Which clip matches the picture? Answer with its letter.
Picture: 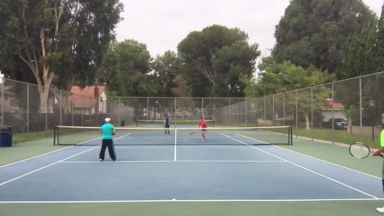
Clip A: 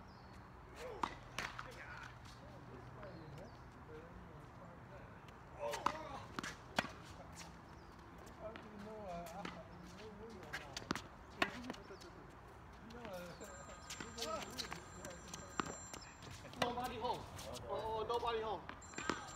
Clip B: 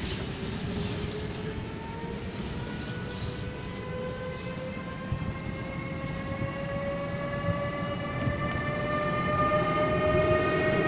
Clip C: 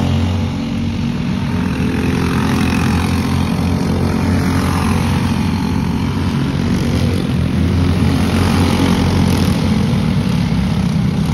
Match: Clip A